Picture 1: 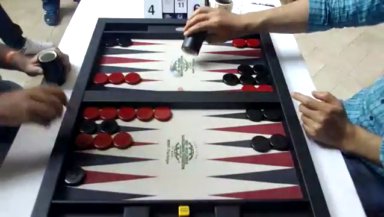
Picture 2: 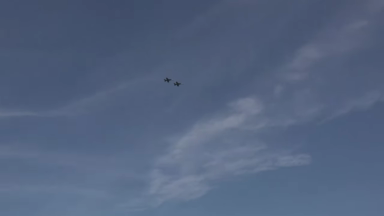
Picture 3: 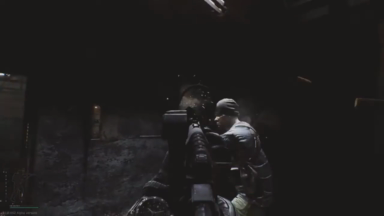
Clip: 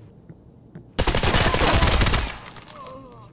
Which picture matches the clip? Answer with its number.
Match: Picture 3